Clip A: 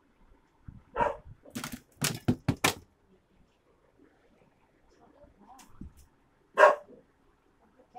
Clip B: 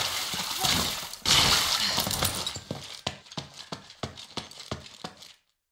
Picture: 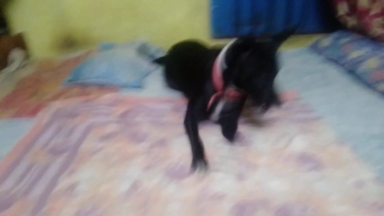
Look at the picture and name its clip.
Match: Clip A